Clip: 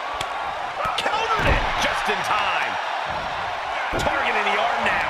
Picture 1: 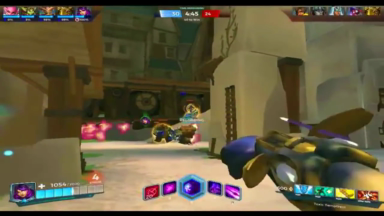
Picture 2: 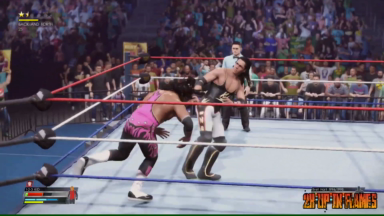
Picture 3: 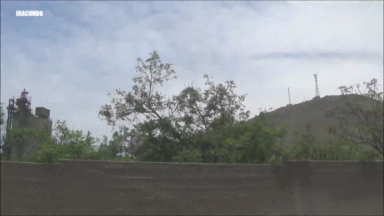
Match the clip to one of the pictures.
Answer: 2